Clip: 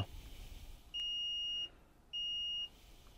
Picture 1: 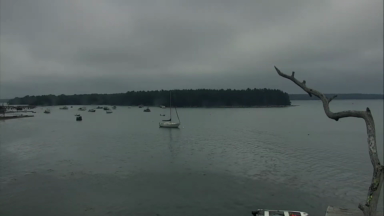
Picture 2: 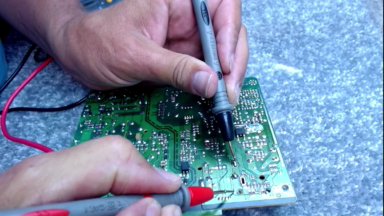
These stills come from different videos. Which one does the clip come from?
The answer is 2